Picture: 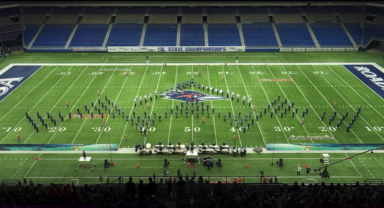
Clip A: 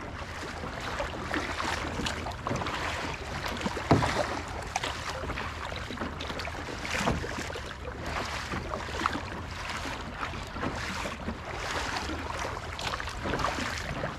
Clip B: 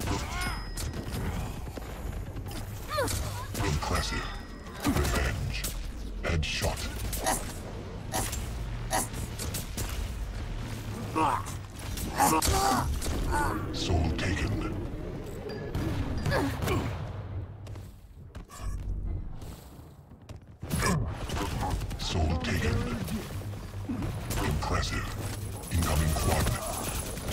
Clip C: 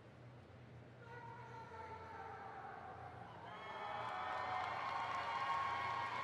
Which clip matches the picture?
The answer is C